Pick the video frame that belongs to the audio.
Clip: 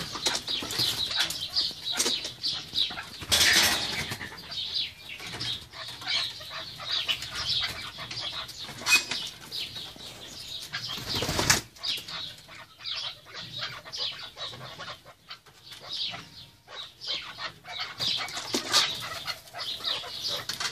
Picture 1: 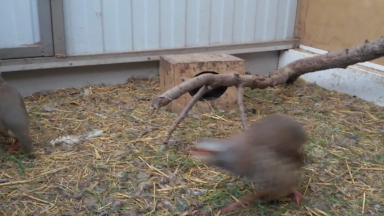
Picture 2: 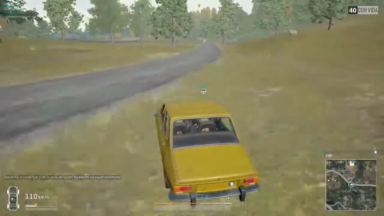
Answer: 1